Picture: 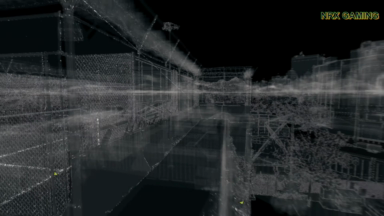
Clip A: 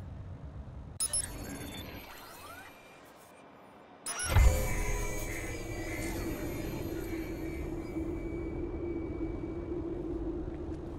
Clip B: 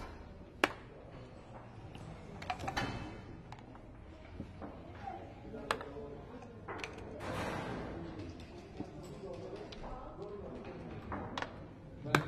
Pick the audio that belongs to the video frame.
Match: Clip A